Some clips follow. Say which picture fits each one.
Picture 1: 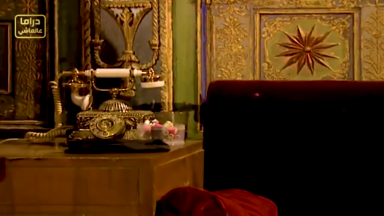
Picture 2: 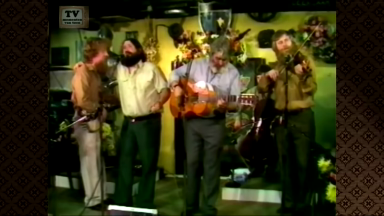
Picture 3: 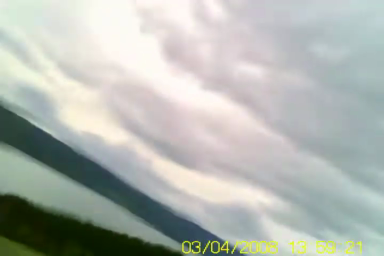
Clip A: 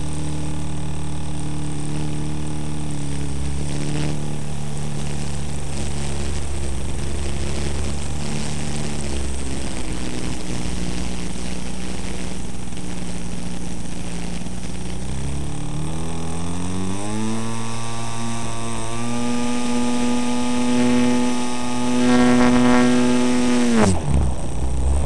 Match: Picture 3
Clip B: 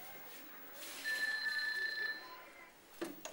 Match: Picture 1